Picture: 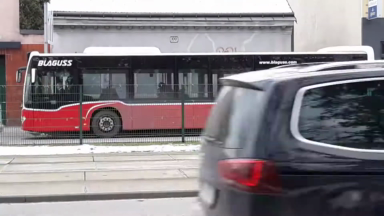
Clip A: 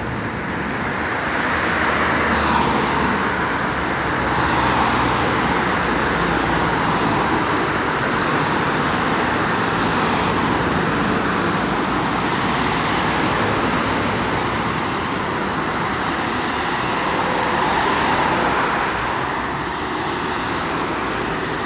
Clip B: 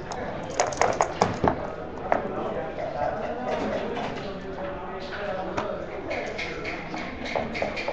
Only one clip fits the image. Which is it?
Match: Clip A